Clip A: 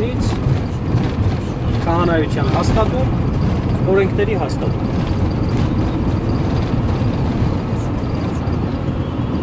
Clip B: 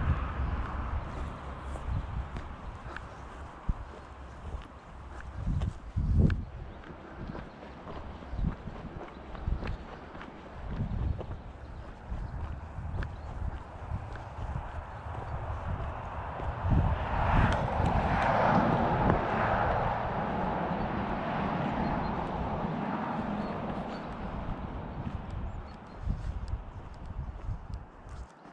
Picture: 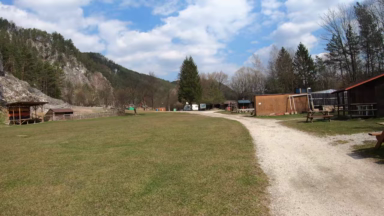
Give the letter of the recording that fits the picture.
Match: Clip B